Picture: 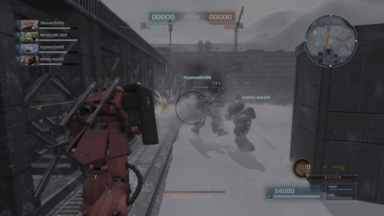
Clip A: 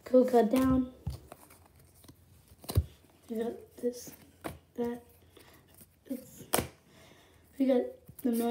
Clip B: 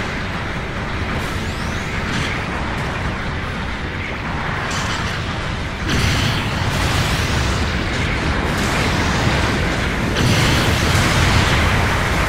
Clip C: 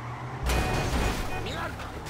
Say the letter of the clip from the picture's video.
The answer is B